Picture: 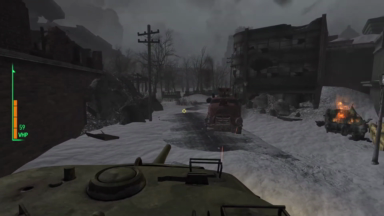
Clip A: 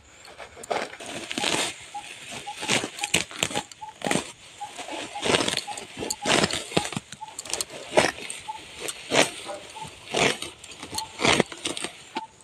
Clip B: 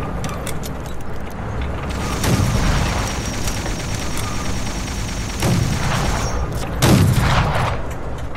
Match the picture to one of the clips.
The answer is B